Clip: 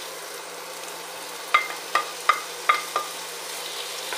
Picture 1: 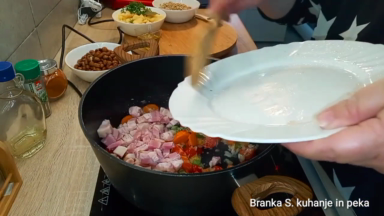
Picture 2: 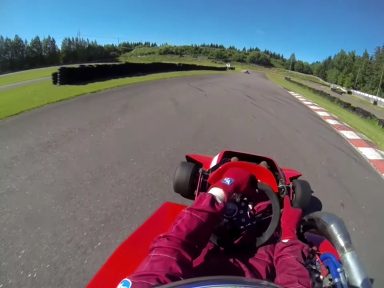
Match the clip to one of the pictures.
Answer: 1